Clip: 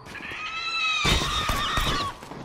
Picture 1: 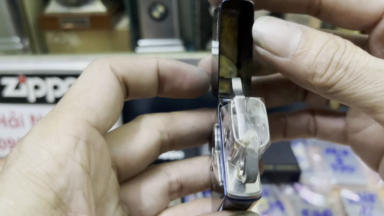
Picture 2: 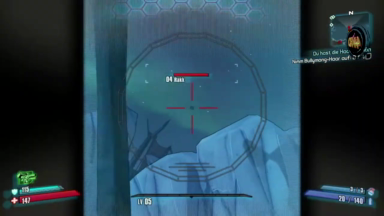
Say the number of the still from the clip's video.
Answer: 2